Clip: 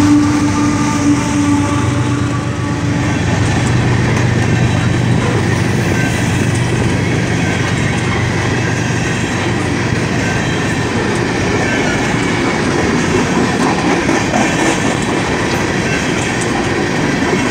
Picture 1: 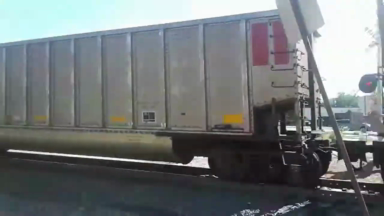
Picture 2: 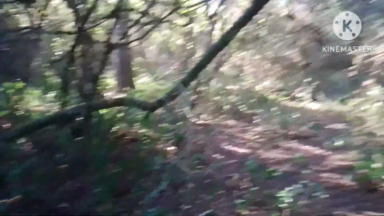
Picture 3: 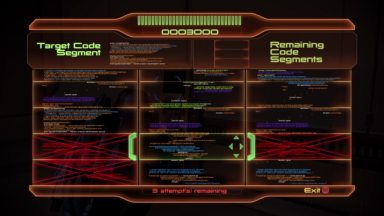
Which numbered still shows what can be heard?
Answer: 1